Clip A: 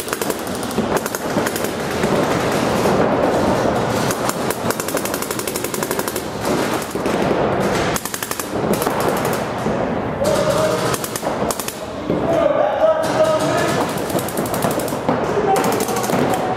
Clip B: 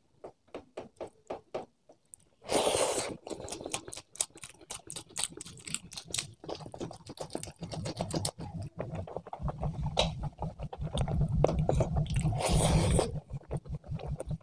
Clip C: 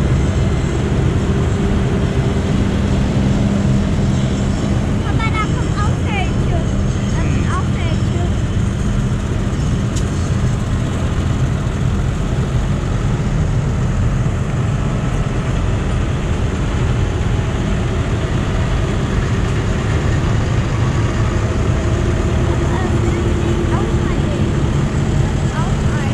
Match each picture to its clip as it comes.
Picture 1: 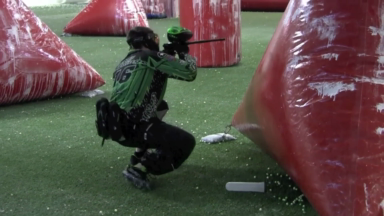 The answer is A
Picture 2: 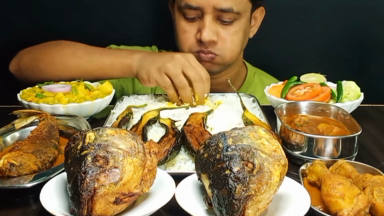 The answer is B